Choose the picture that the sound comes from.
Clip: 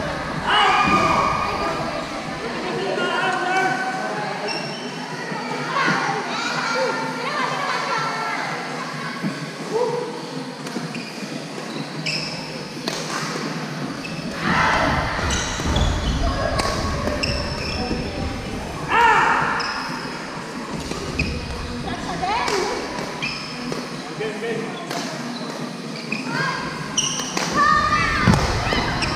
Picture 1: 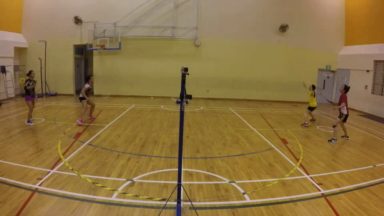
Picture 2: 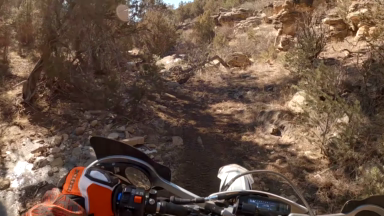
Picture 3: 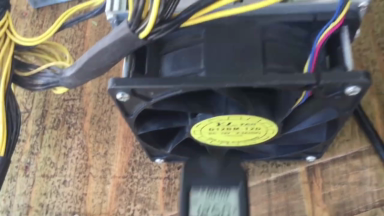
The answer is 1